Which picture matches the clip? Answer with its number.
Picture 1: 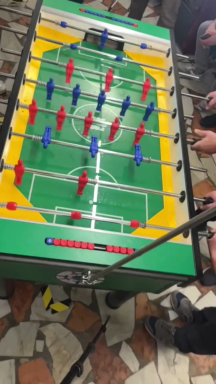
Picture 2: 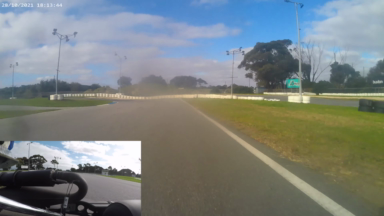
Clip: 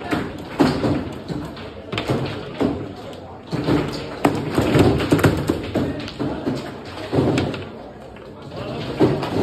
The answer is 1